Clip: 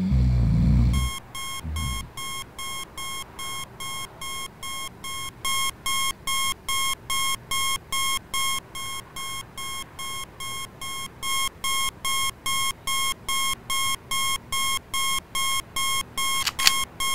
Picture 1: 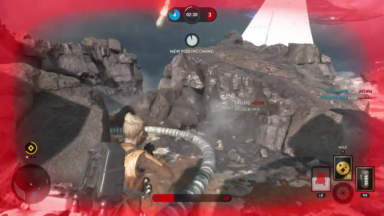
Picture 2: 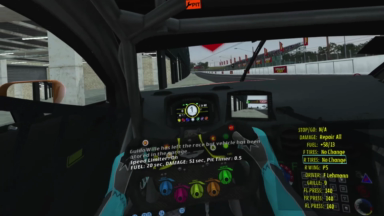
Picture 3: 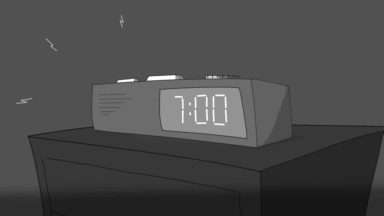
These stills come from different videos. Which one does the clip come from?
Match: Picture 3